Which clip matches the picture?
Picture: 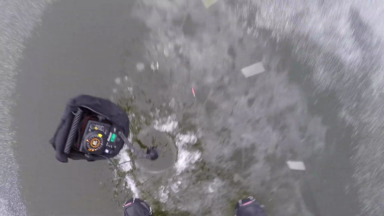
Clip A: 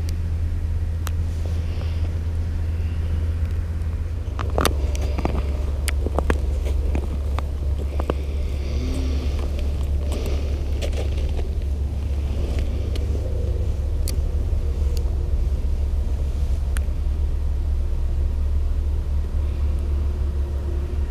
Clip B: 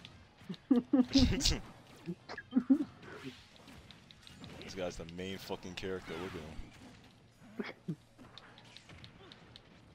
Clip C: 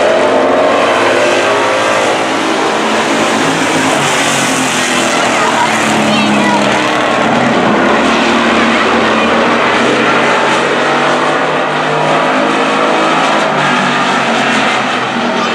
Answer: A